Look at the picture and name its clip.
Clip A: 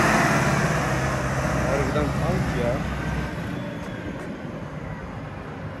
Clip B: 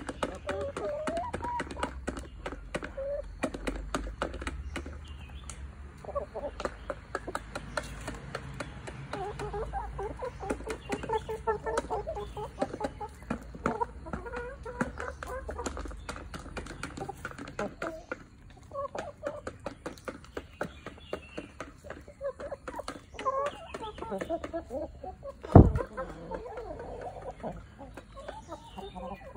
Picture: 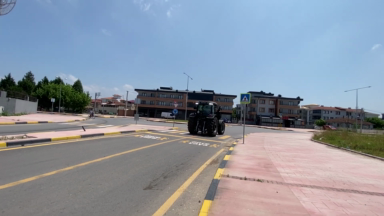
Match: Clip A